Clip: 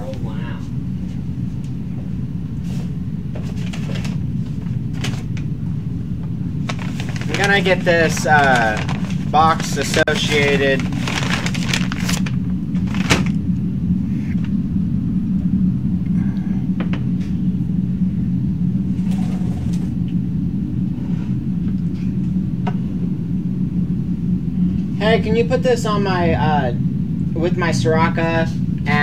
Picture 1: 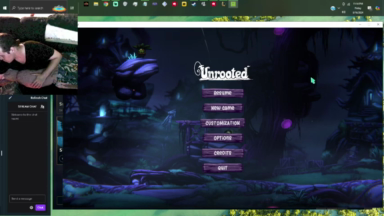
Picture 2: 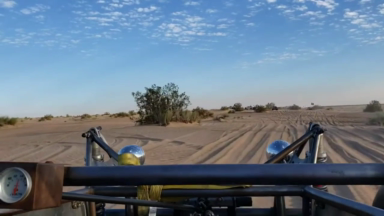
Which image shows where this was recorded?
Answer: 1